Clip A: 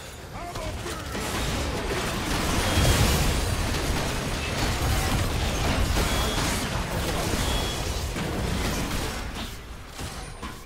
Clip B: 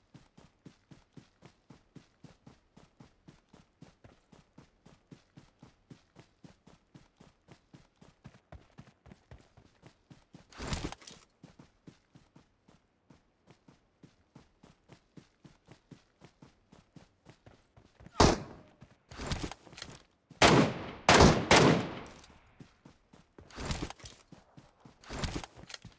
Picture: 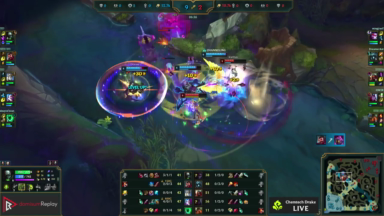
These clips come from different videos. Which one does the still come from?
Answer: A